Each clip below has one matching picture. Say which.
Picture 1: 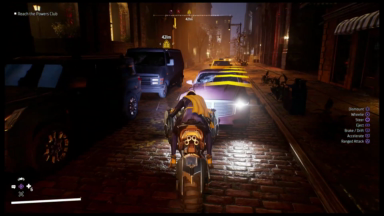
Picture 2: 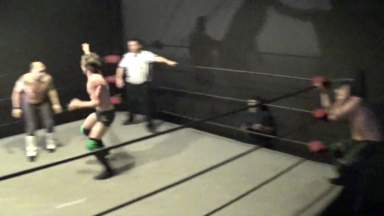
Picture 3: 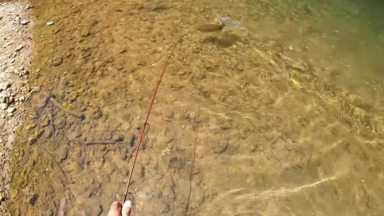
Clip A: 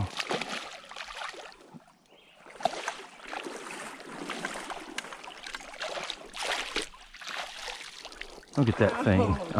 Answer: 3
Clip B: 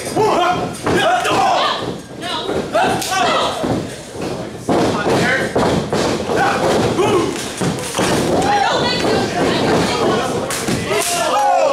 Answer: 2